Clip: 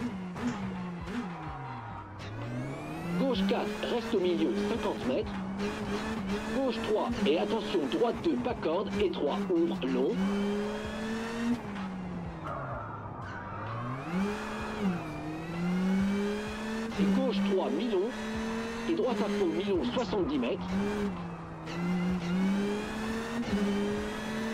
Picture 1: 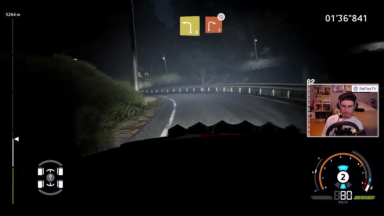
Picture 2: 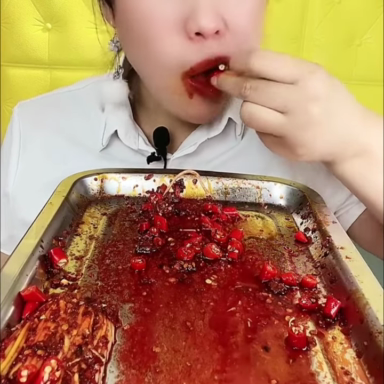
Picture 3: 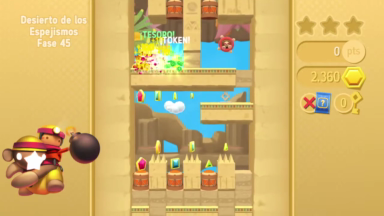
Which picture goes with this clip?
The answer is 1